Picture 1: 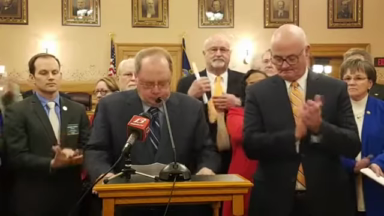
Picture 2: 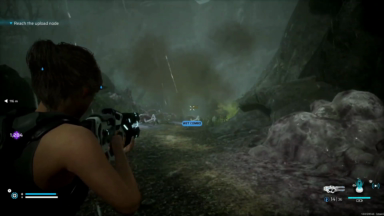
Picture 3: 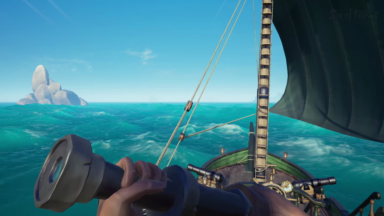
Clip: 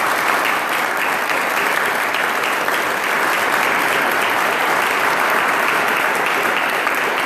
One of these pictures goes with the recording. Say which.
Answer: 1